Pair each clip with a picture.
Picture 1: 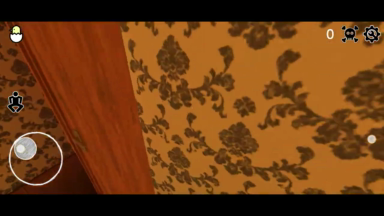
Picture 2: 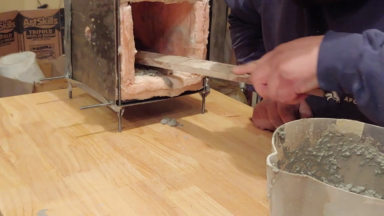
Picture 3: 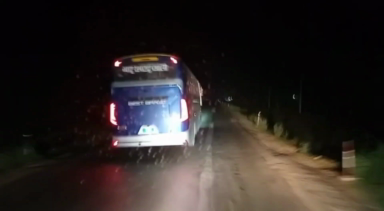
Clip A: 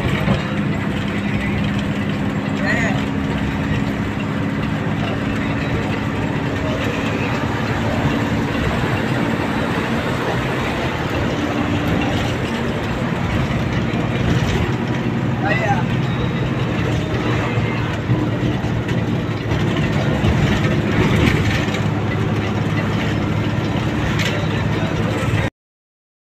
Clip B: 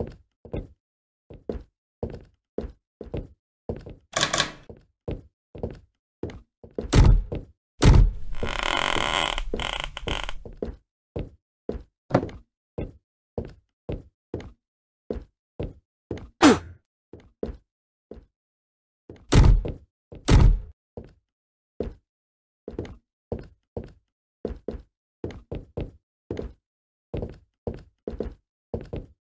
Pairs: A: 3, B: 1